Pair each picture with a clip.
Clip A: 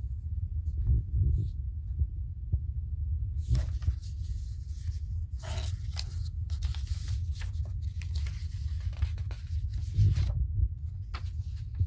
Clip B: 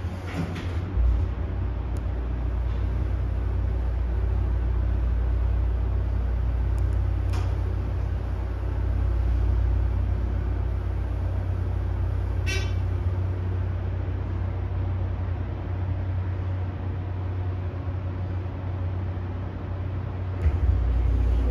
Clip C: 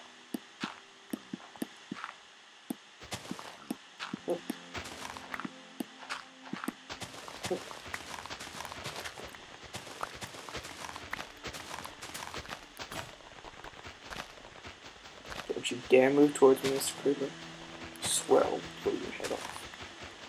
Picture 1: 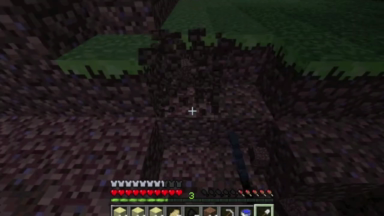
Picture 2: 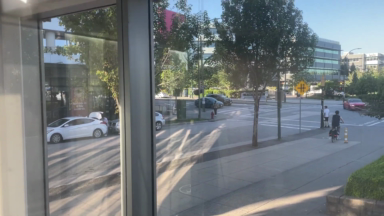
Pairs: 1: C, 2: B